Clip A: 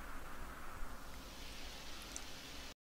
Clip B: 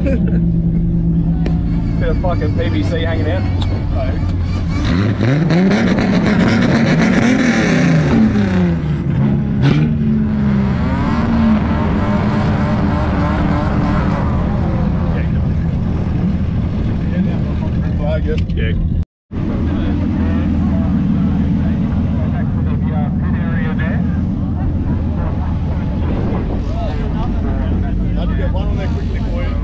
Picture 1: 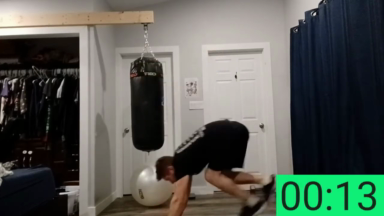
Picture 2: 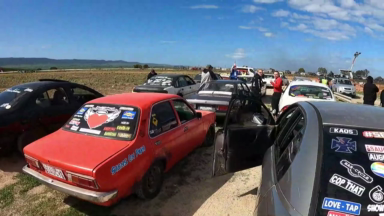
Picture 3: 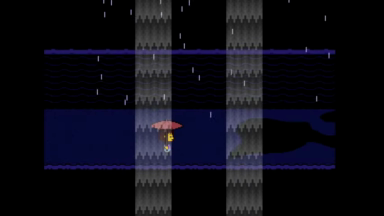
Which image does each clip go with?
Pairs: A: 3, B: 2